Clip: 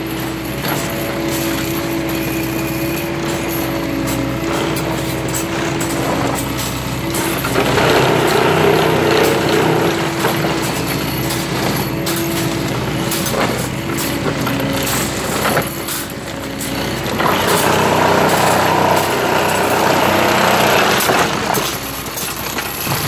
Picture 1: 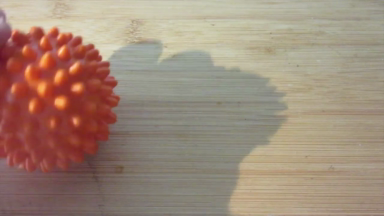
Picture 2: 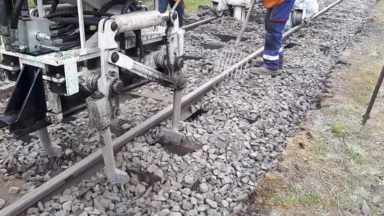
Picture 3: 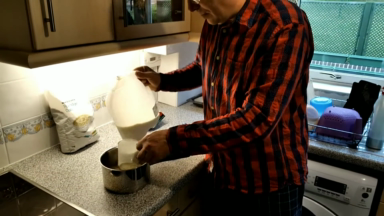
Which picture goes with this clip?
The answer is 2